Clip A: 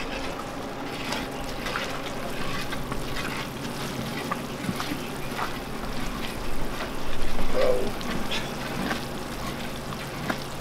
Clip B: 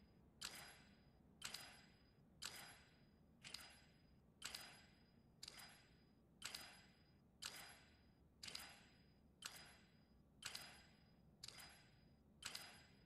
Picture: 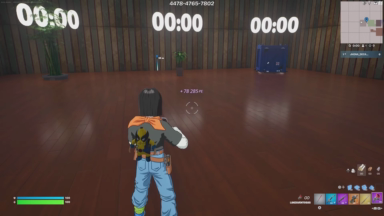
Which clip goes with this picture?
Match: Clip B